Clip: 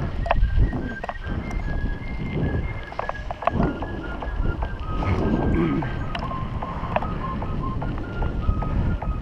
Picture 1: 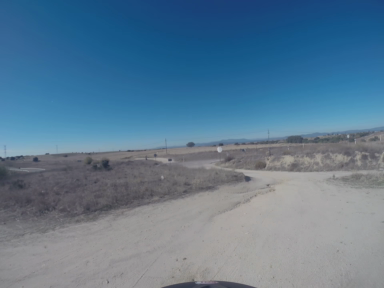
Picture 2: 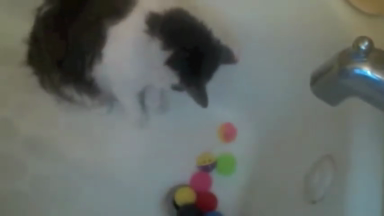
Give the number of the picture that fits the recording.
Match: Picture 1